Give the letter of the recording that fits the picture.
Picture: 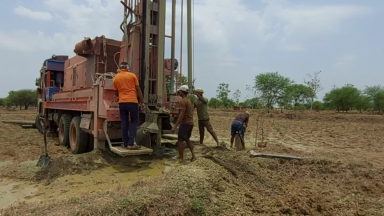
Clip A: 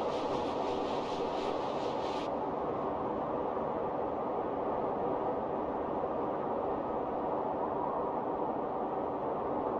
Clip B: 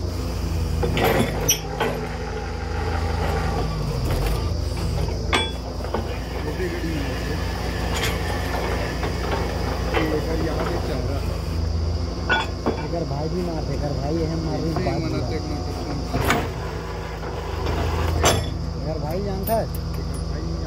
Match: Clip B